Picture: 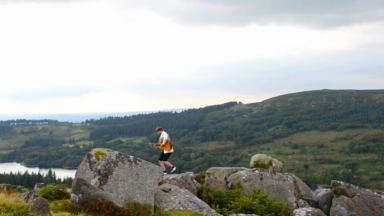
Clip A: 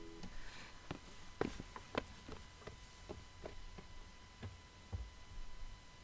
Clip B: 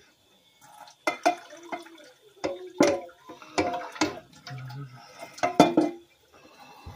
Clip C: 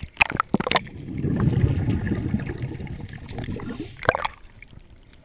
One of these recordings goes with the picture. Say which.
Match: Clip A